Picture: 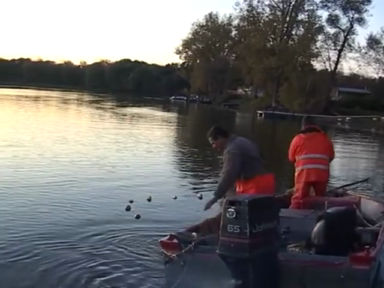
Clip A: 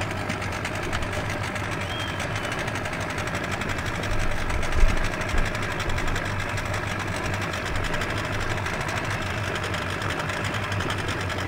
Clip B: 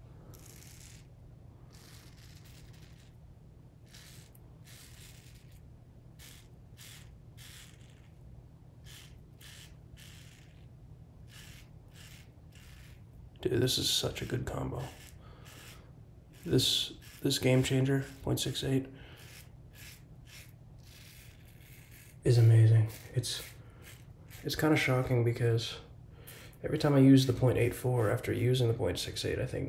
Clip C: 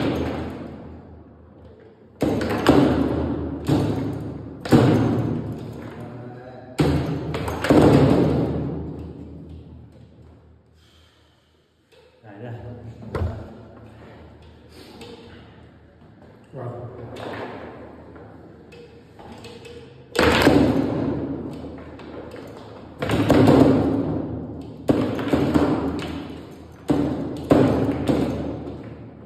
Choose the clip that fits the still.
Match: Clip A